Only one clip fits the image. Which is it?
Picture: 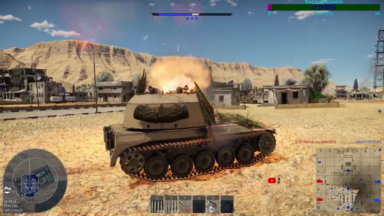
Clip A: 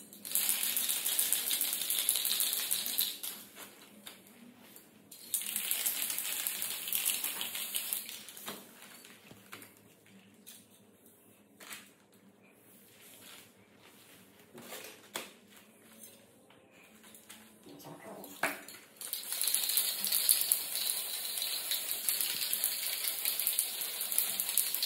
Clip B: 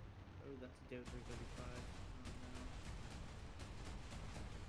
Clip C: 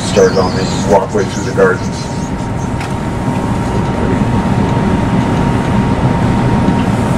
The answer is B